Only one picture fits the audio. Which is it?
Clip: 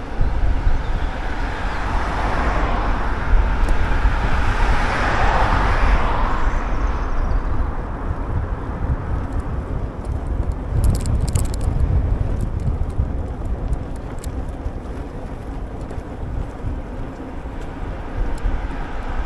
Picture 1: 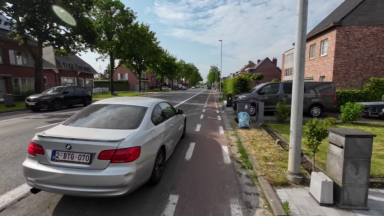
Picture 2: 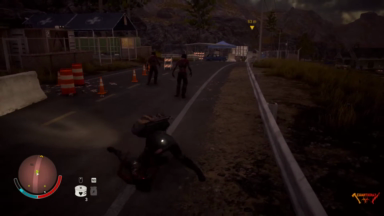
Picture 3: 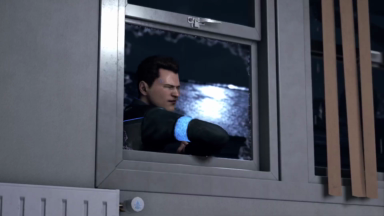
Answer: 1